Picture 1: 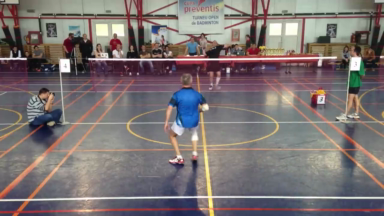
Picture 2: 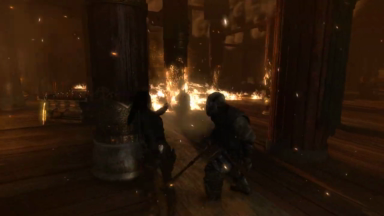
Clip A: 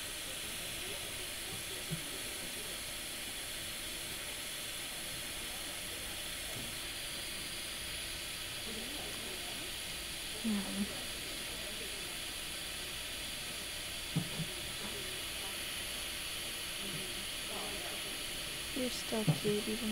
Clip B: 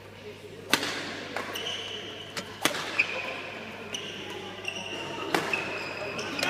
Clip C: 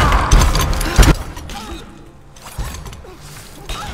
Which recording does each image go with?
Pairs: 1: B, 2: C